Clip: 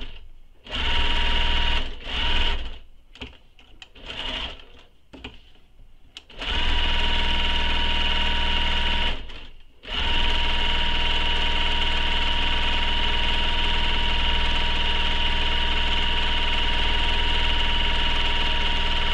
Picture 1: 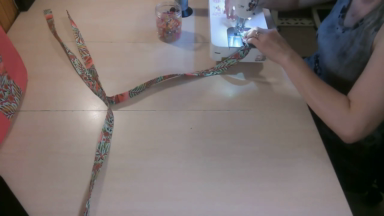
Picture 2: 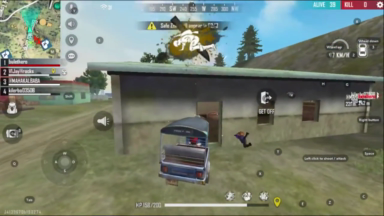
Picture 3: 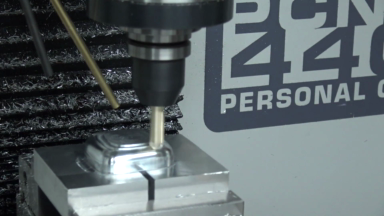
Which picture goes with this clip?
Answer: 1